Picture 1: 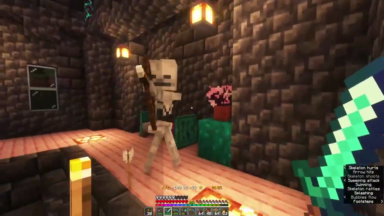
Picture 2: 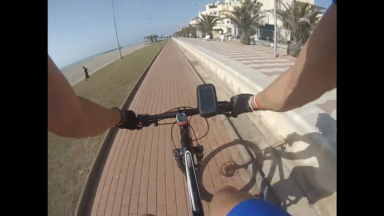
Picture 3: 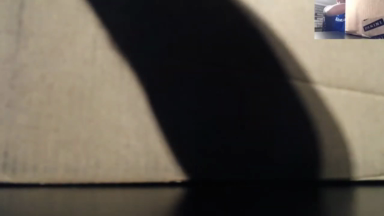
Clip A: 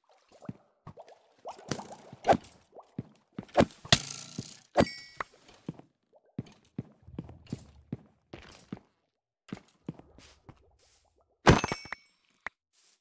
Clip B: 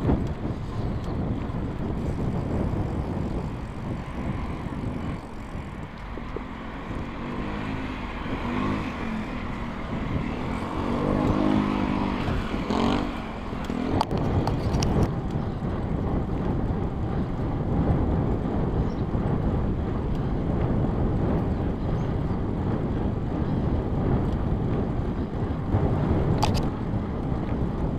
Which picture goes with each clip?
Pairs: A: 1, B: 2